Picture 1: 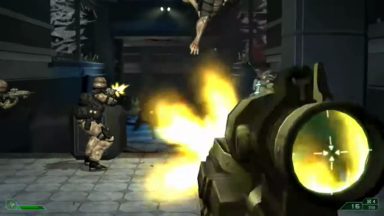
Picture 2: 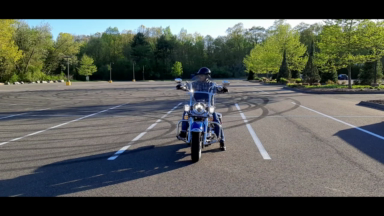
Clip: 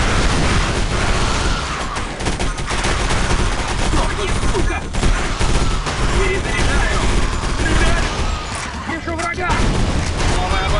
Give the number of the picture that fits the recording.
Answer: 1